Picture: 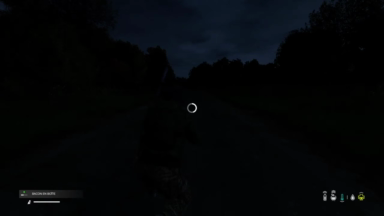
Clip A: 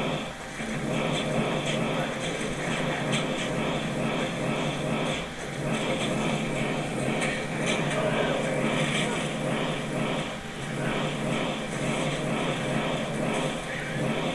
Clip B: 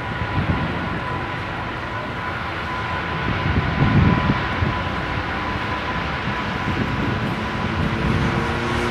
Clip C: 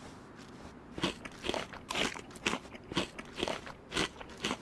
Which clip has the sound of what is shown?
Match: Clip C